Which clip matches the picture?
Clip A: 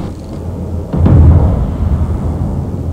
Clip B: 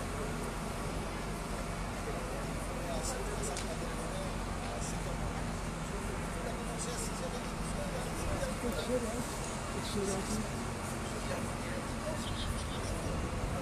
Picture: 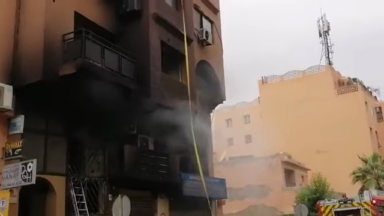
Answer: B